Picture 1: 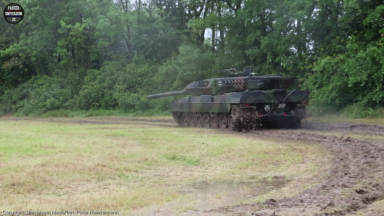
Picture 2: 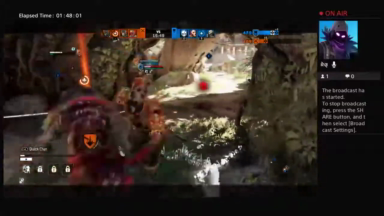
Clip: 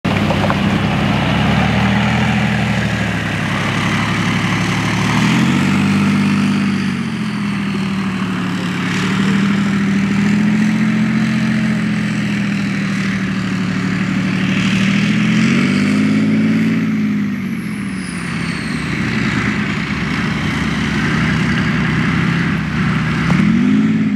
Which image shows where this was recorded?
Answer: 1